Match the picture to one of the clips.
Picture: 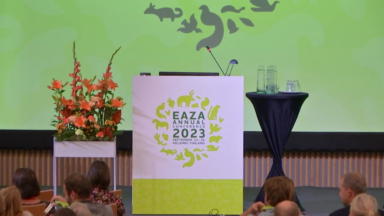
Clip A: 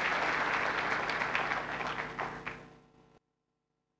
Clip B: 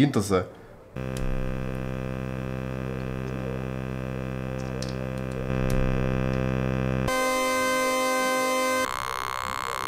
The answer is A